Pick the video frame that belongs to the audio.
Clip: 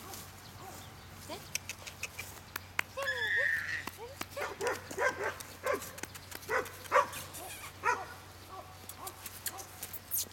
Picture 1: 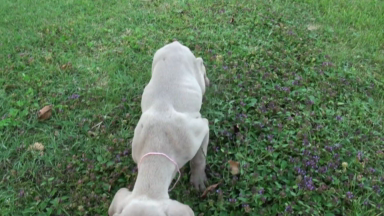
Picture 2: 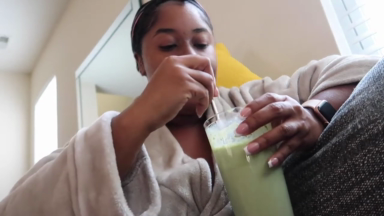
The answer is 1